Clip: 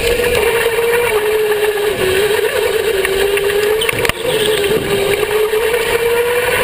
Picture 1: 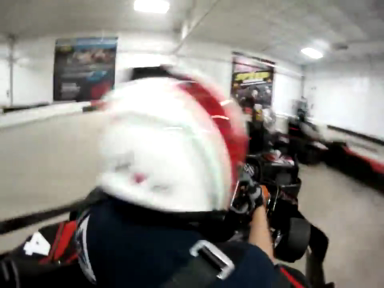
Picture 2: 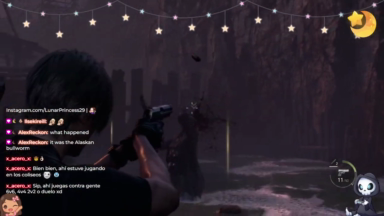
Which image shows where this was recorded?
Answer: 1